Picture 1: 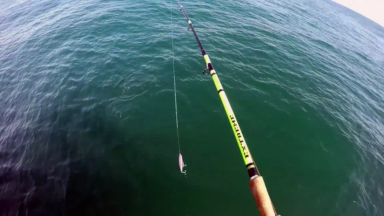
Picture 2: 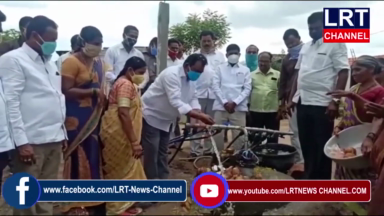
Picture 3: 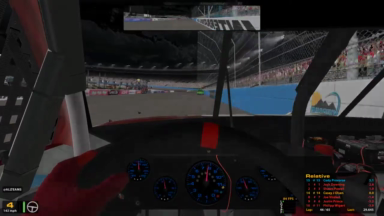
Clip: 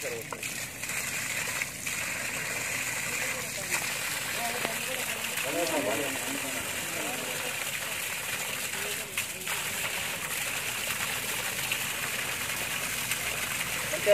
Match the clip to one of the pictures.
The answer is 2